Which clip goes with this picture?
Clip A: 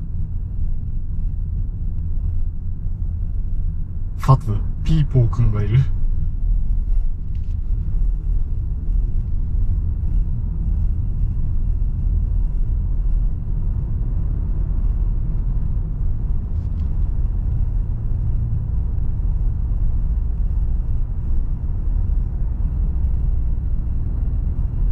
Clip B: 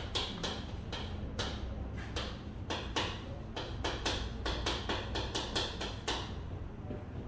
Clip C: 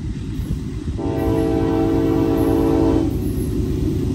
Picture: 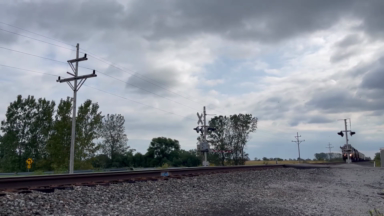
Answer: C